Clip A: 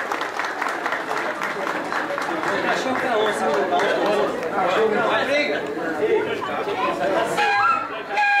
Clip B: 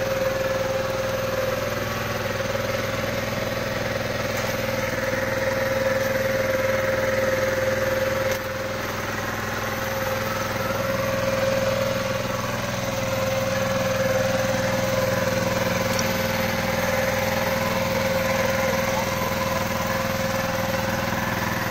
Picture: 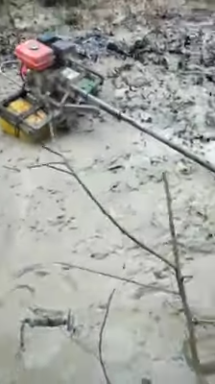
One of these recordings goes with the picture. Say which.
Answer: B